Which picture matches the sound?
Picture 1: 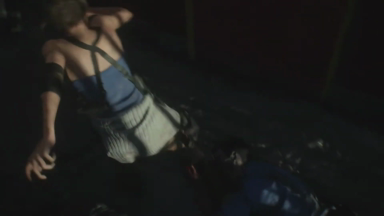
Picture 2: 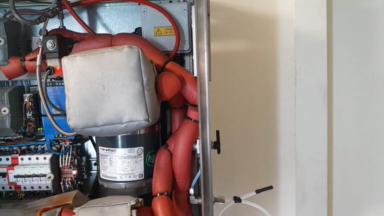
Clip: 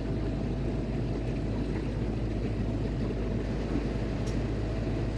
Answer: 2